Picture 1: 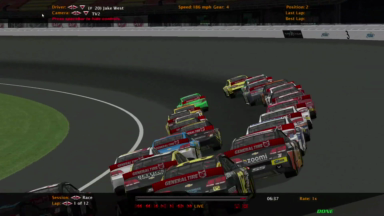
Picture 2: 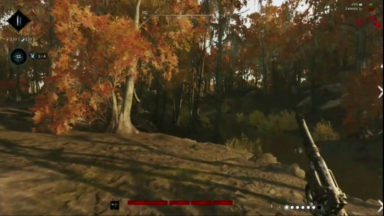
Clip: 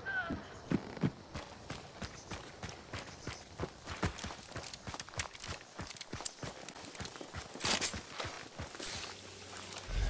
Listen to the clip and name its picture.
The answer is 2